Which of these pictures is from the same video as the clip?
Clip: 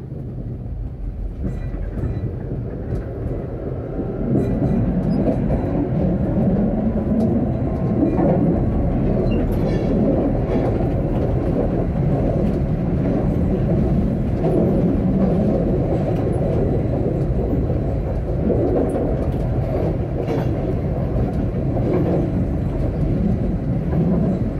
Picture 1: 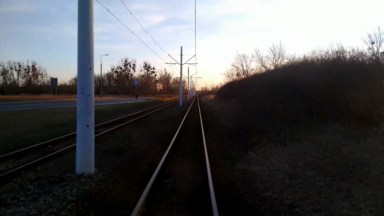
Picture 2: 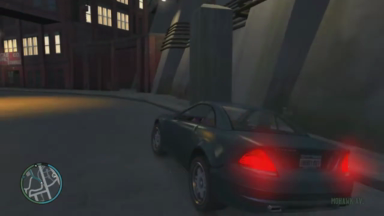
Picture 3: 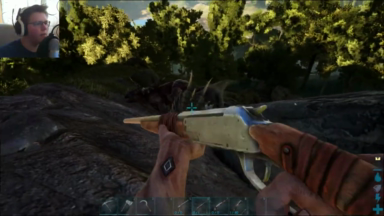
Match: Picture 1